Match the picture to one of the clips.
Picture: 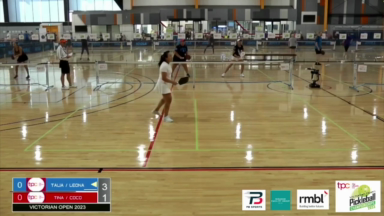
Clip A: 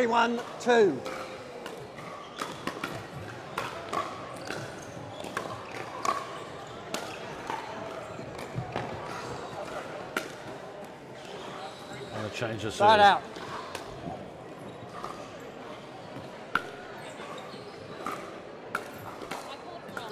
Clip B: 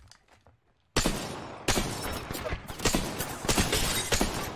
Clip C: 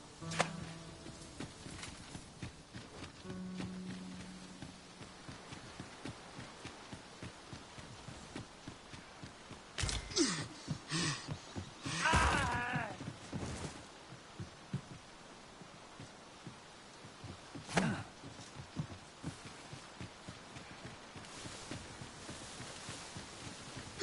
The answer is A